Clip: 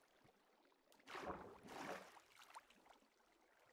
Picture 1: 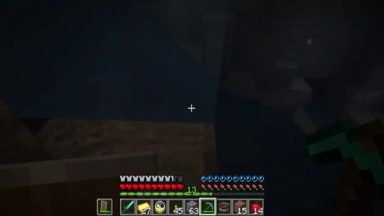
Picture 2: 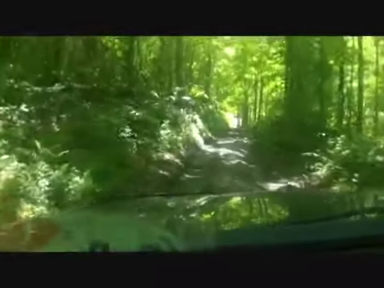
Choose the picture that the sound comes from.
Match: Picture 1